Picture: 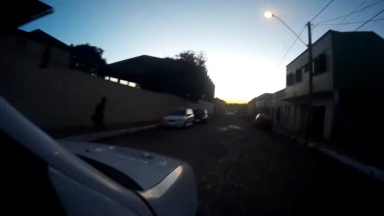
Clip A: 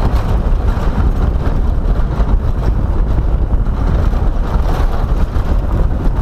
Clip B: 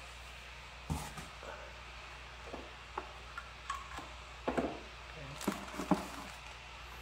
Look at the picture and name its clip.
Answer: A